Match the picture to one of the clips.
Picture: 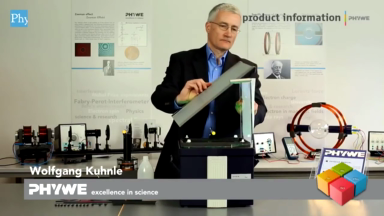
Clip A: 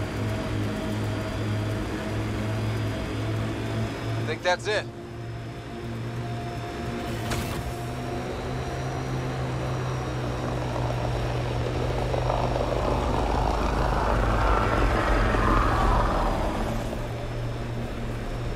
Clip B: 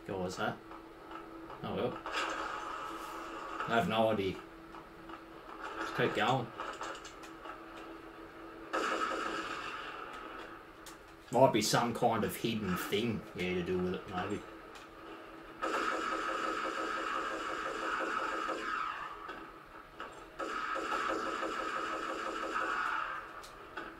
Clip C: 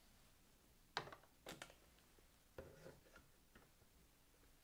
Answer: C